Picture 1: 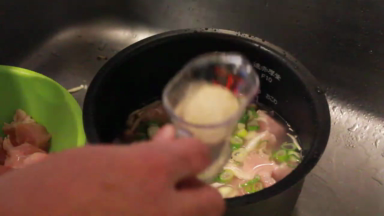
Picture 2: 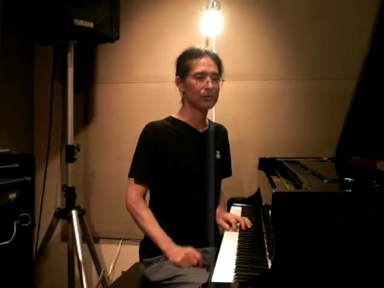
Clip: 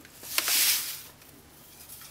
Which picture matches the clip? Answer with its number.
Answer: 1